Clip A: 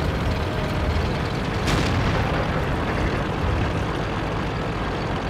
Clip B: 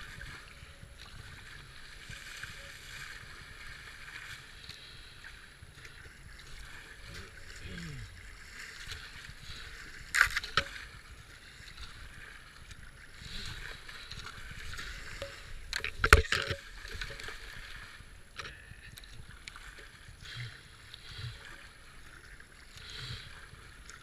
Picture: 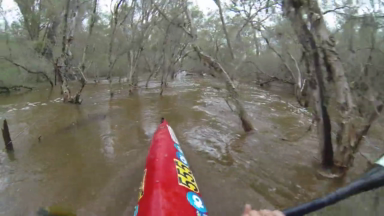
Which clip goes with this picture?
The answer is B